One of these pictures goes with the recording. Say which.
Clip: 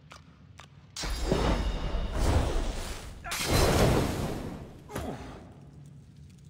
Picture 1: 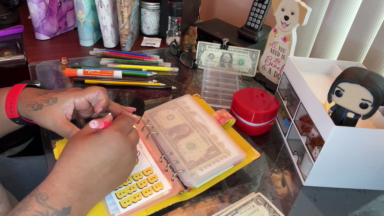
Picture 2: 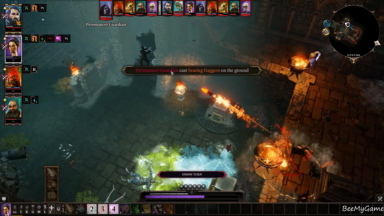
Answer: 2